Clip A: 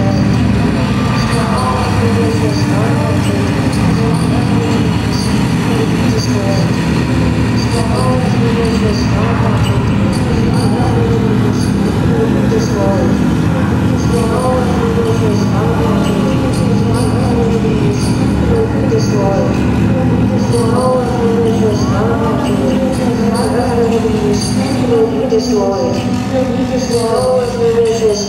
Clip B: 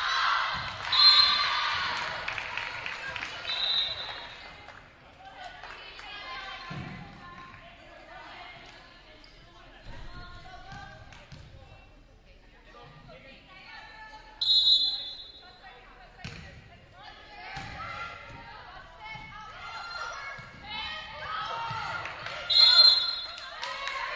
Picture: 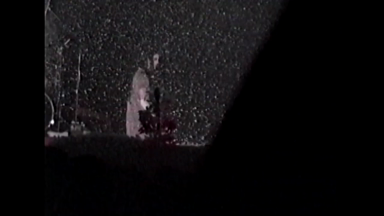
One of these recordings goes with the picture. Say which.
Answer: A